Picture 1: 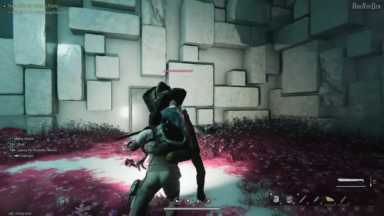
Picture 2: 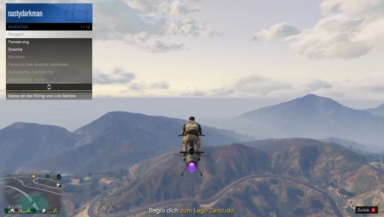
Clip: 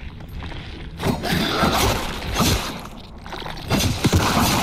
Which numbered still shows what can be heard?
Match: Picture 1